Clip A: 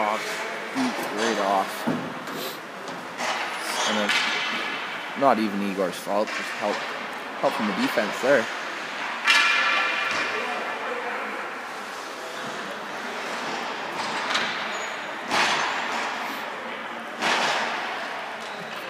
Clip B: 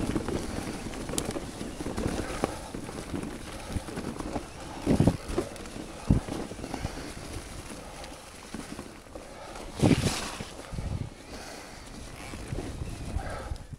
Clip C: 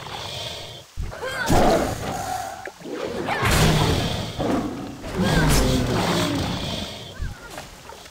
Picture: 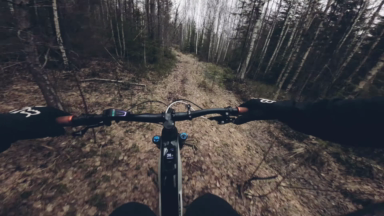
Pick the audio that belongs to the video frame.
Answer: B